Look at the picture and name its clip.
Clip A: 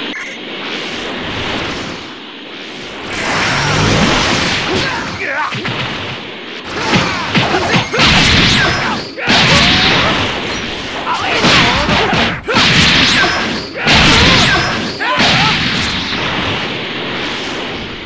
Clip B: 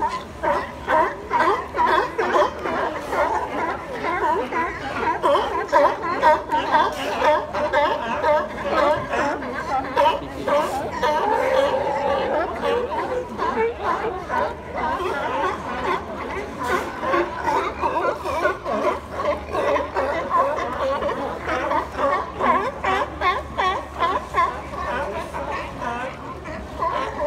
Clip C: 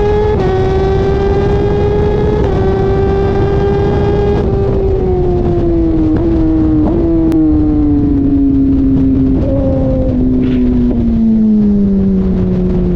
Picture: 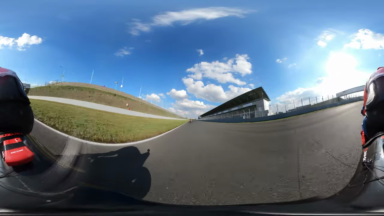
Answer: C